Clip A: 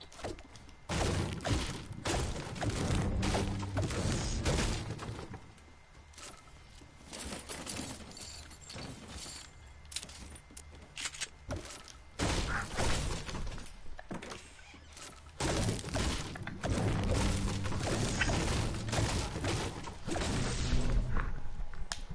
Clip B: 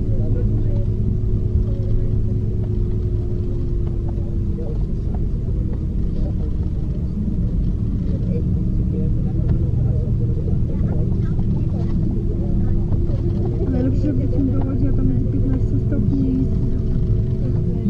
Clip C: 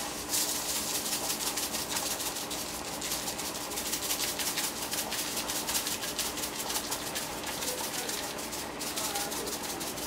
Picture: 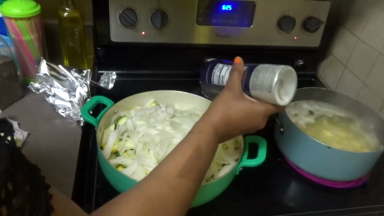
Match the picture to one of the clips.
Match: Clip C